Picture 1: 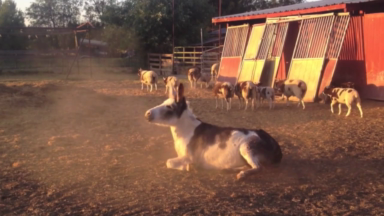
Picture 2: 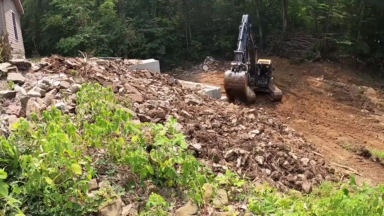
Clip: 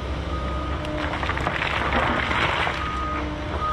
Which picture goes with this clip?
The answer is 2